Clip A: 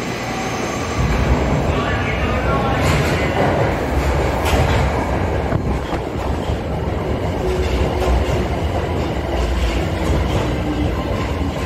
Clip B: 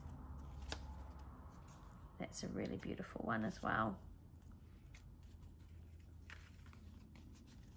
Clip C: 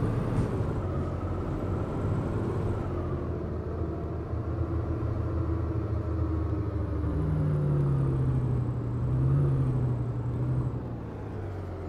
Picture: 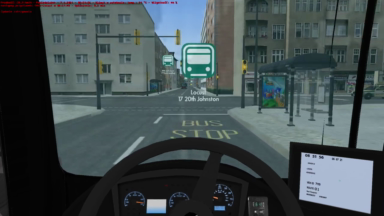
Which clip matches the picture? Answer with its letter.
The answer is C